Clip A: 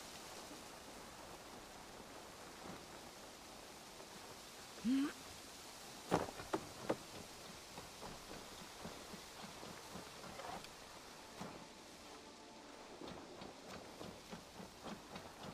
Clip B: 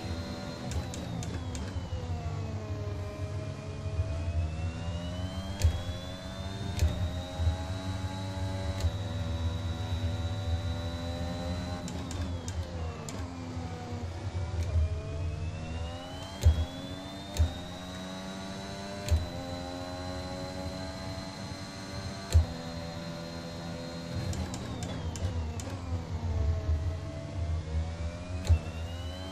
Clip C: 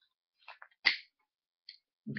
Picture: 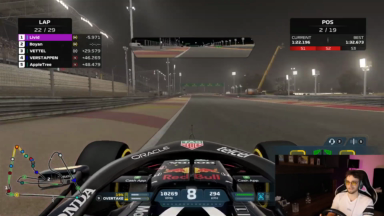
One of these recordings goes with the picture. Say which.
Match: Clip B